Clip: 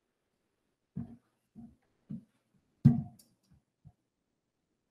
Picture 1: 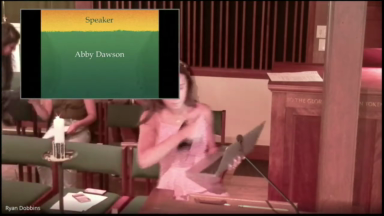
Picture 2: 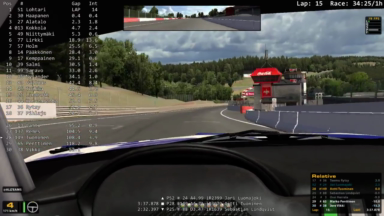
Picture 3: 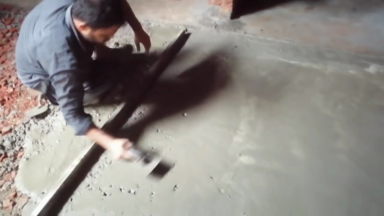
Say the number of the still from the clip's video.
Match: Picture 1